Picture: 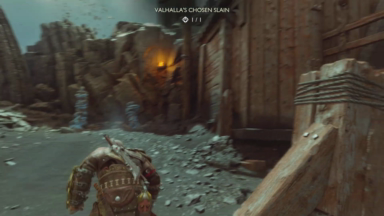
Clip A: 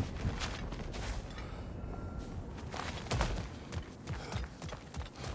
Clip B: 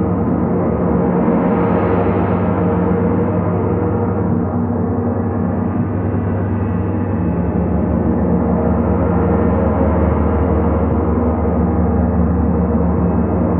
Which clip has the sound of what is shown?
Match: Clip A